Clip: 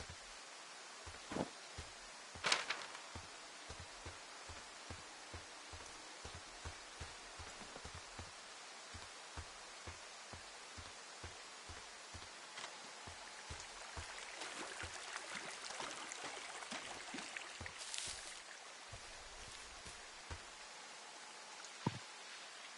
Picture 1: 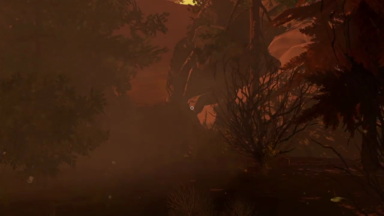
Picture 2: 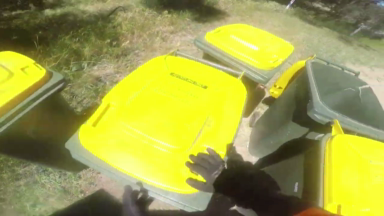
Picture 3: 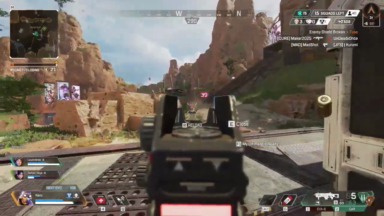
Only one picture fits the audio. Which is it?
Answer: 1